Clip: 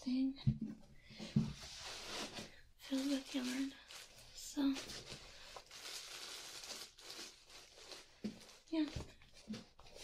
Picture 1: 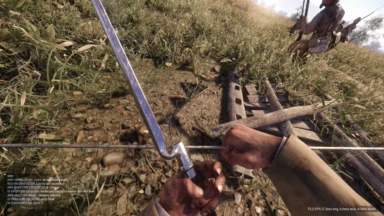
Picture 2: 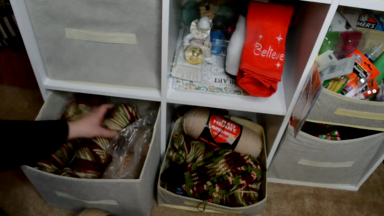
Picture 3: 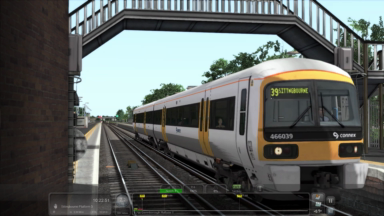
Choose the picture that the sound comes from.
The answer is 2